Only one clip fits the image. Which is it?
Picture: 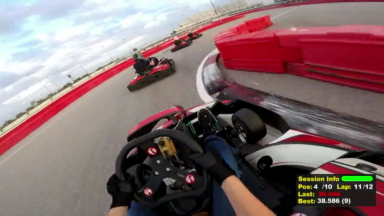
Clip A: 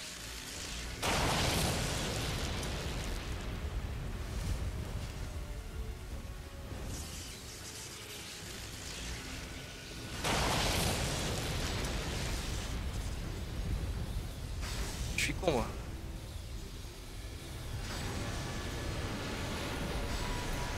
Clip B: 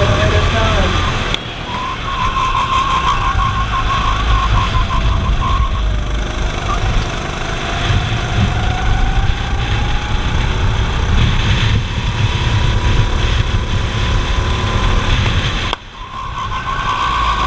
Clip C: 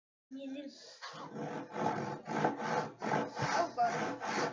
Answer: B